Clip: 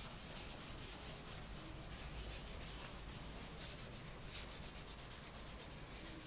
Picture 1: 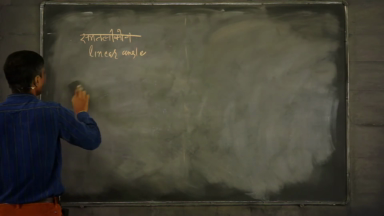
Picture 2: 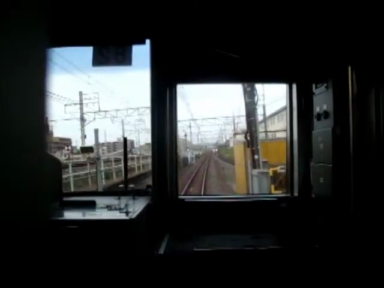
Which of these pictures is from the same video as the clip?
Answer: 1